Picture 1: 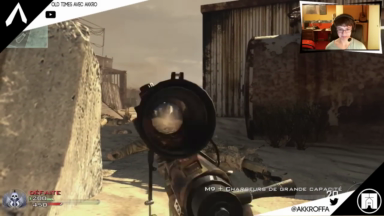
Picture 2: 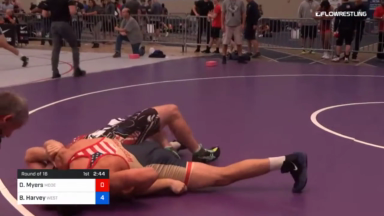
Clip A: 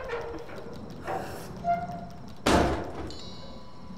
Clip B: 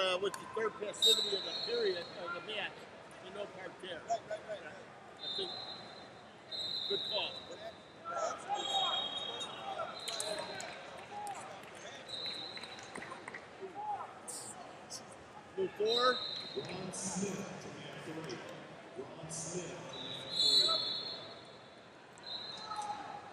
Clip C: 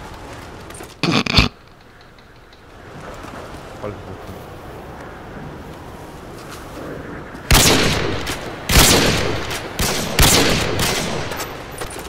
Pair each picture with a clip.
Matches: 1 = C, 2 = B